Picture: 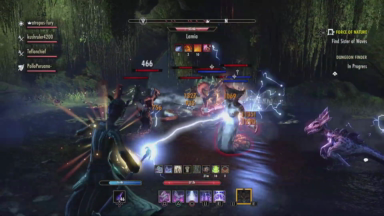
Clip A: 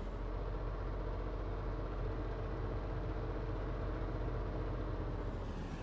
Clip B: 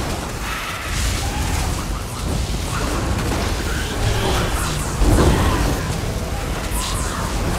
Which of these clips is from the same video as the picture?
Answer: B